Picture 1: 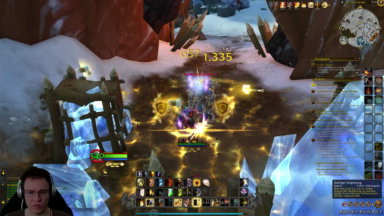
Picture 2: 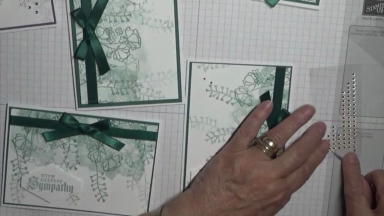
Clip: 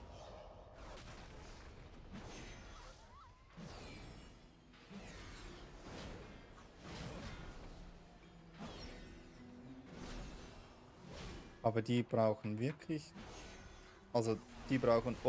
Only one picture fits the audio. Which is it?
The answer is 1